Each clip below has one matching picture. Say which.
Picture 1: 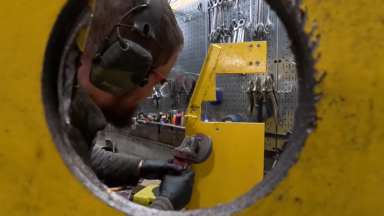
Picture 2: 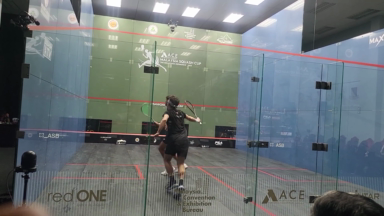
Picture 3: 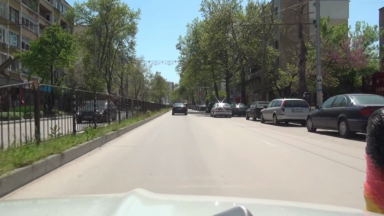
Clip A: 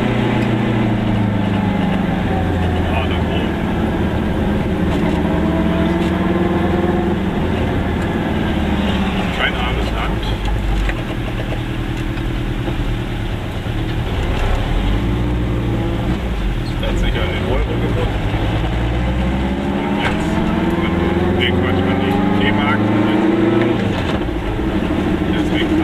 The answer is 3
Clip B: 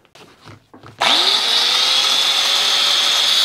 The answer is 1